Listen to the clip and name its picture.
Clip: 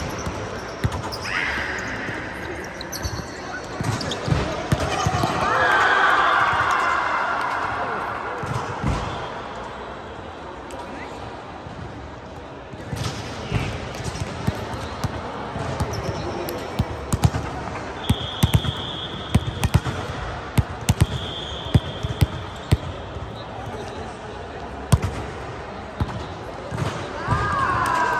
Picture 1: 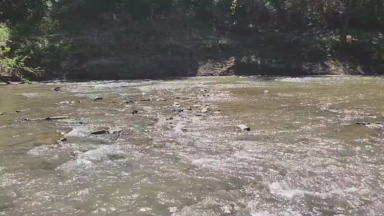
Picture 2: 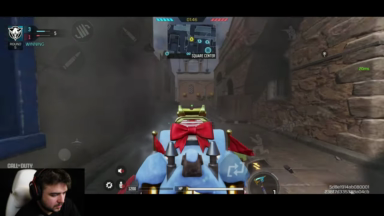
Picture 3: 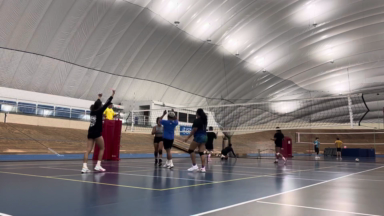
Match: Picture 3